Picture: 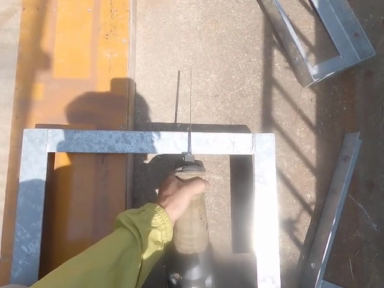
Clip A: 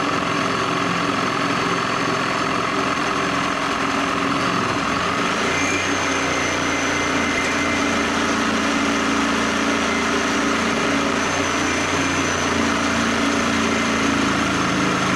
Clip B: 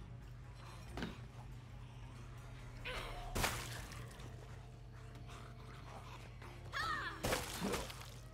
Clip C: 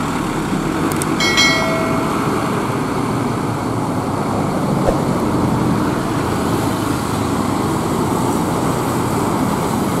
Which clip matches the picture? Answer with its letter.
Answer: A